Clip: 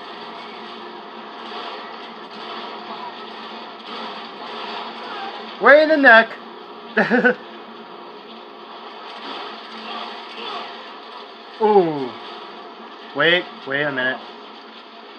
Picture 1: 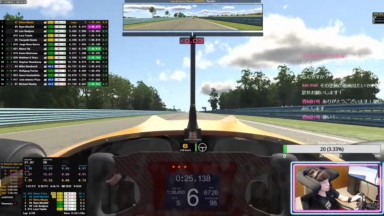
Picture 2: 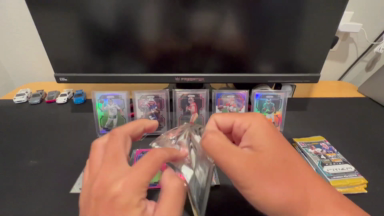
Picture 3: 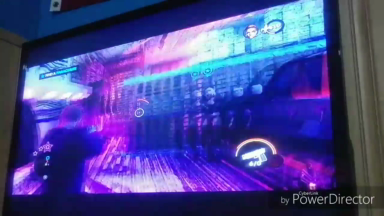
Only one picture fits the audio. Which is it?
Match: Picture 3